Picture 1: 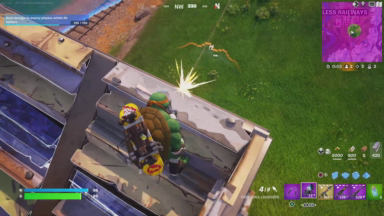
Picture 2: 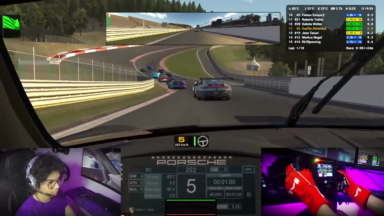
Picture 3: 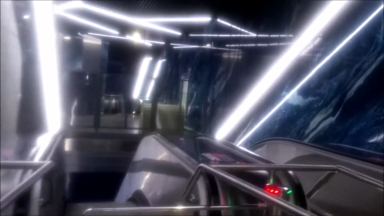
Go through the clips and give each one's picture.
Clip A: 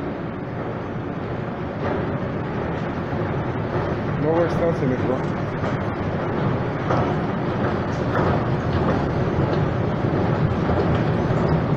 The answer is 3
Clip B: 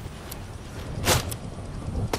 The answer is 1